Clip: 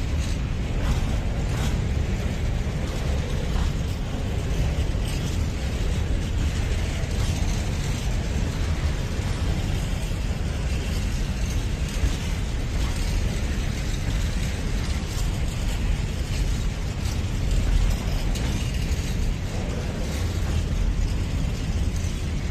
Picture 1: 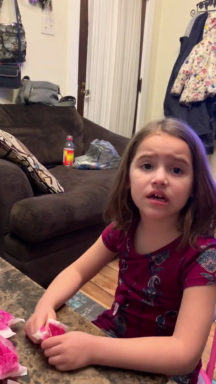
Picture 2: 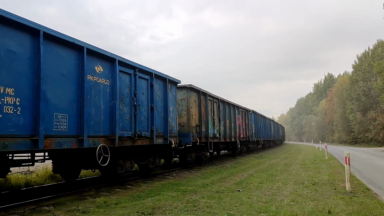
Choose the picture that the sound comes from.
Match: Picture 2